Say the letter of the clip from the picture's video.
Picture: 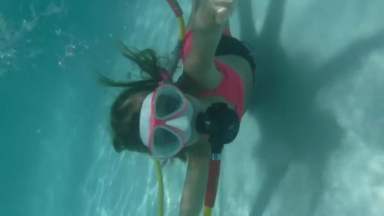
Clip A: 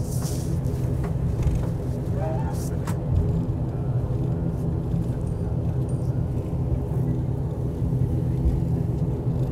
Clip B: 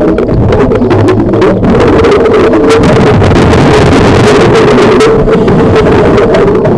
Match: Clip B